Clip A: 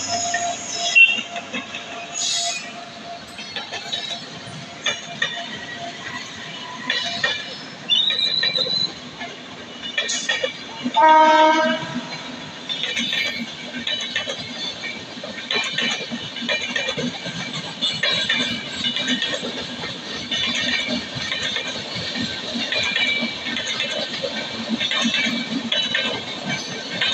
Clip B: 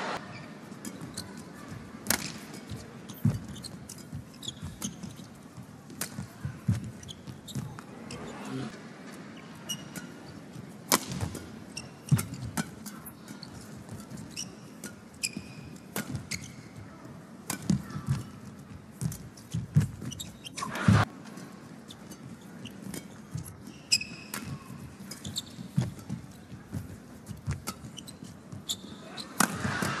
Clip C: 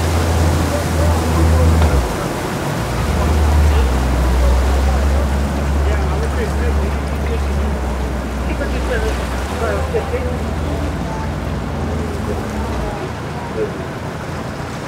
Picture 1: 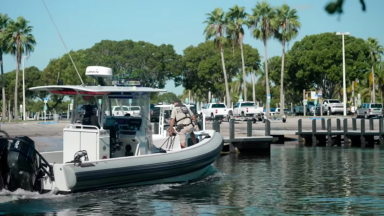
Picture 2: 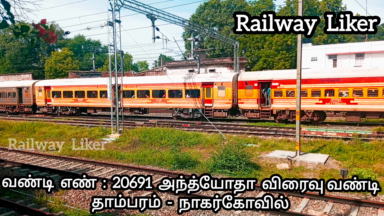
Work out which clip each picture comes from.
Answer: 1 C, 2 A